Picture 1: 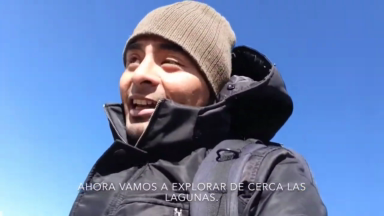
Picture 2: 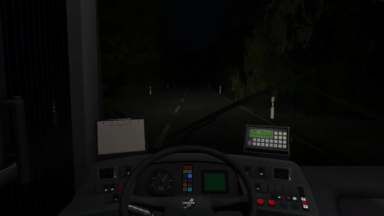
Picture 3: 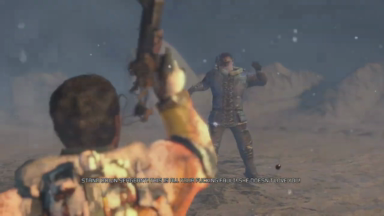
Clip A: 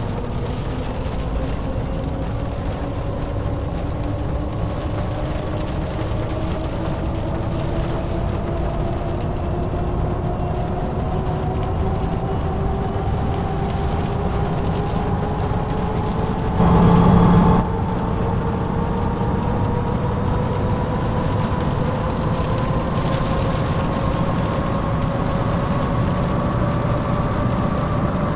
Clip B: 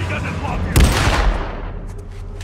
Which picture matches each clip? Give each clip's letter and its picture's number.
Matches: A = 2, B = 3